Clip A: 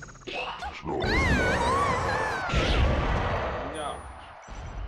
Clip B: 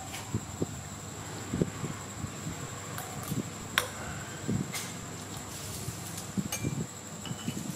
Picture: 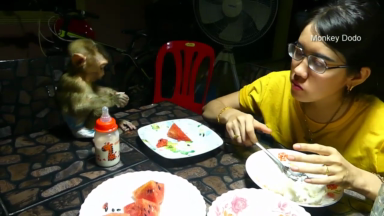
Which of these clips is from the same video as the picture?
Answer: B